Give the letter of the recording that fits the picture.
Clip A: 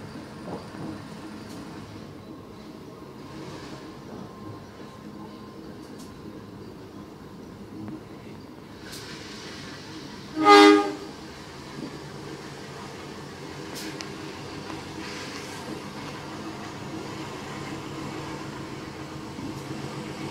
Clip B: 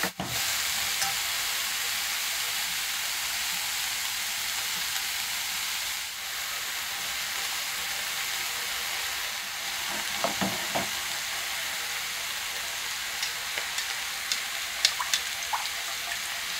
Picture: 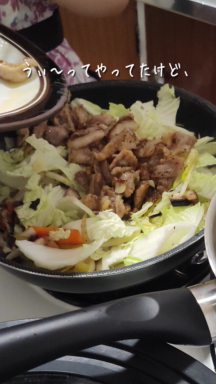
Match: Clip B